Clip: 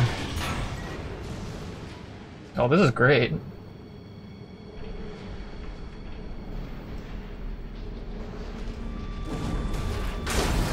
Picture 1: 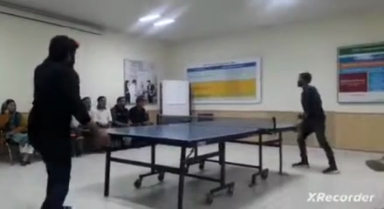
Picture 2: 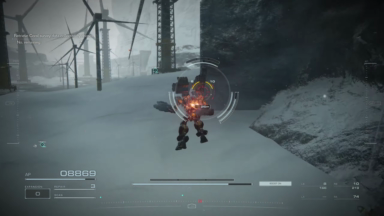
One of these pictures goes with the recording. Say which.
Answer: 2